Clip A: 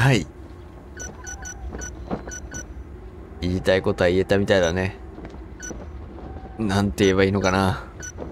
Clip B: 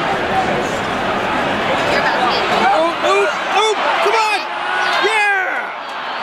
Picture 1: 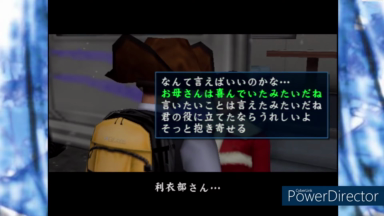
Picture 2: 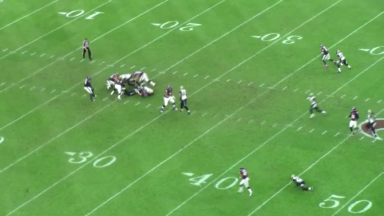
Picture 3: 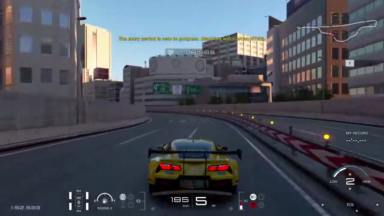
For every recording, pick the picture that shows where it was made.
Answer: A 1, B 2